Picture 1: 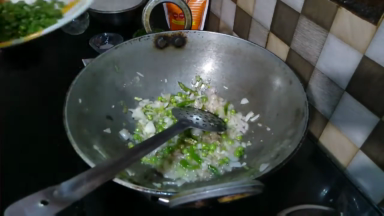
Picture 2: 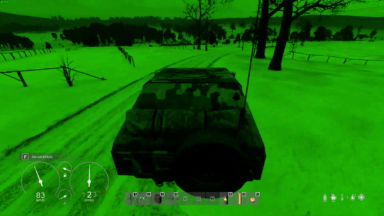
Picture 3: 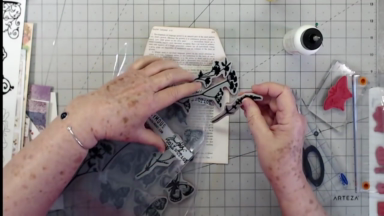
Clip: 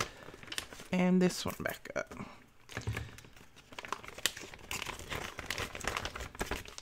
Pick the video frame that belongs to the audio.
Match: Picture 3